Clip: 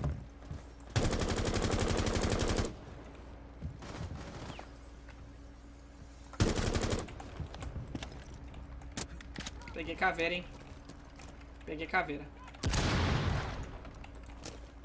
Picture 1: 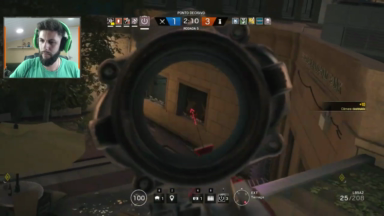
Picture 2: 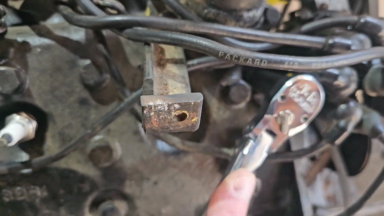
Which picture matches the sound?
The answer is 1